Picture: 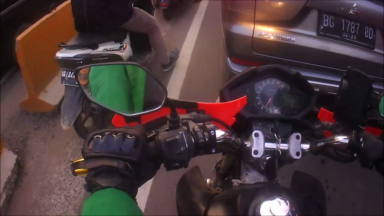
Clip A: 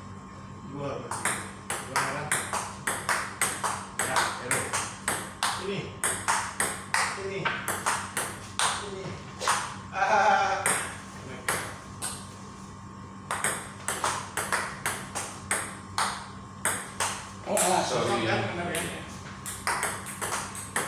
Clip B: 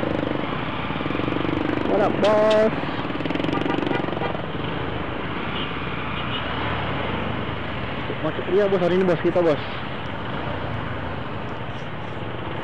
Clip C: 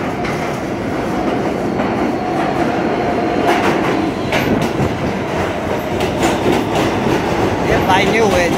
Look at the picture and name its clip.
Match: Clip B